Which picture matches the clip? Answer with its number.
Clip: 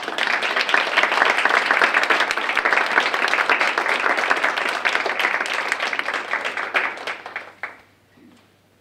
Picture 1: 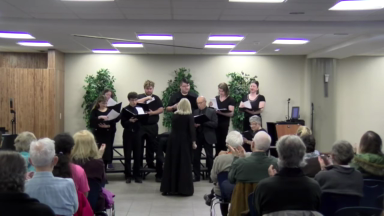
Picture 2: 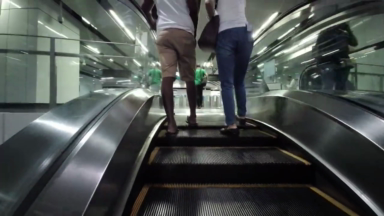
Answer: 1